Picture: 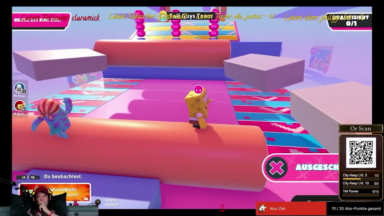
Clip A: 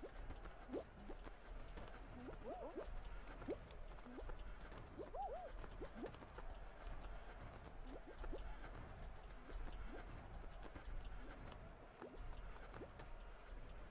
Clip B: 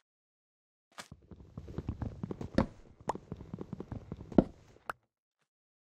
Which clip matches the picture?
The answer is A